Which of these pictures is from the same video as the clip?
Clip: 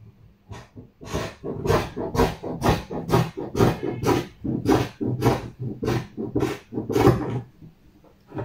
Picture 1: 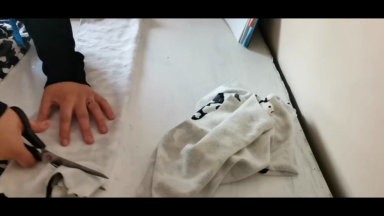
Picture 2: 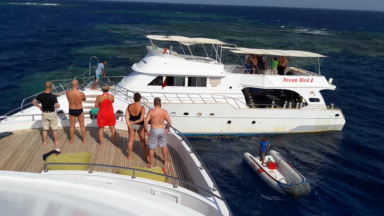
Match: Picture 1